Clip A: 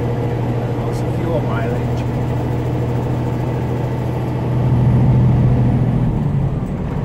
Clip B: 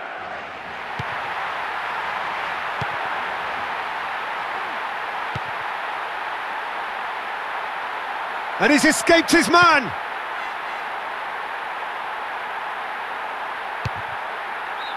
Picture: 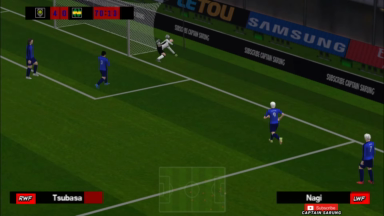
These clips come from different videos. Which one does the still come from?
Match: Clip B